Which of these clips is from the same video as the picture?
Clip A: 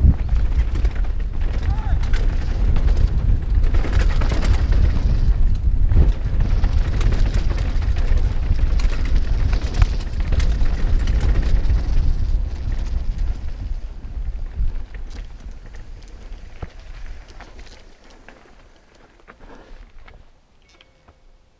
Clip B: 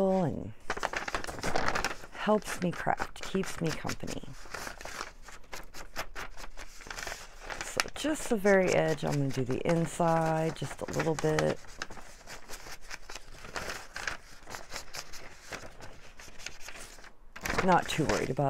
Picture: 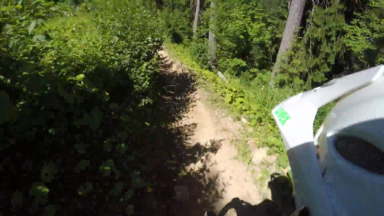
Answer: A